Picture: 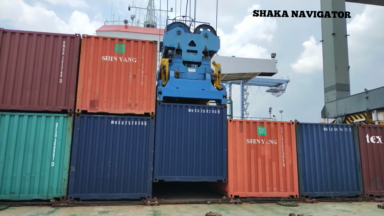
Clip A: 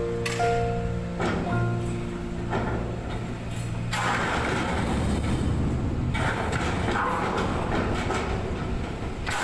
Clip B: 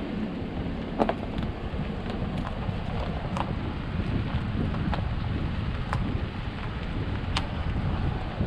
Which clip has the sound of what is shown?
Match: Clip A